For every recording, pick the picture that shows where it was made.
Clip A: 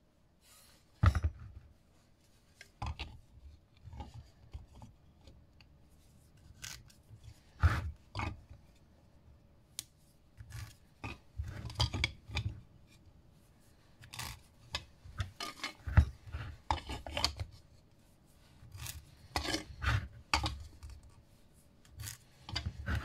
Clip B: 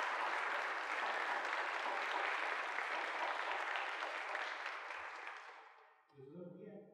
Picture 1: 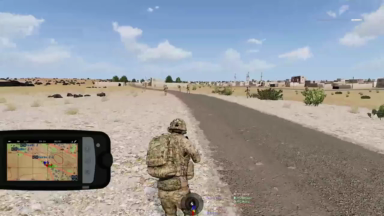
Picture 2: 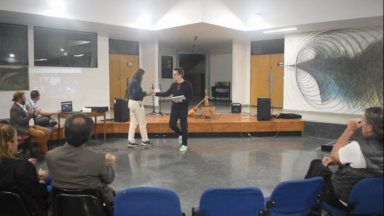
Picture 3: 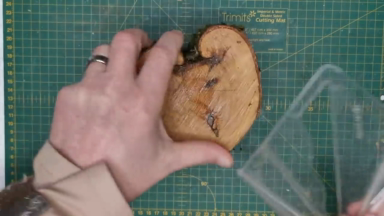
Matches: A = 3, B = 2